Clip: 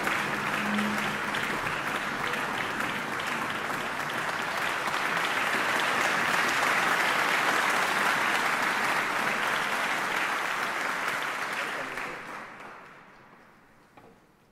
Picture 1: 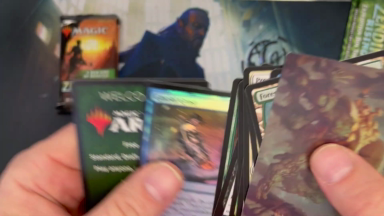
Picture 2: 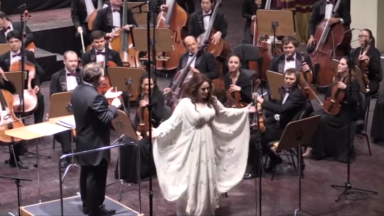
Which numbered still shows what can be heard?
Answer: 2